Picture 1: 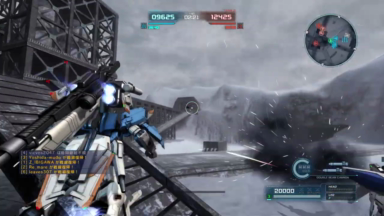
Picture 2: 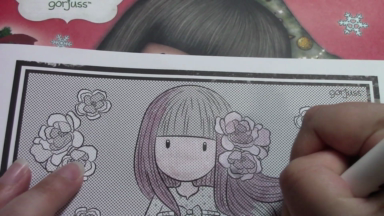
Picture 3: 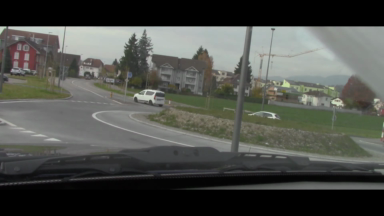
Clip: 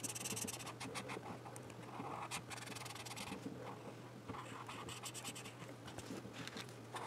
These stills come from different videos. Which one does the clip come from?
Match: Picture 2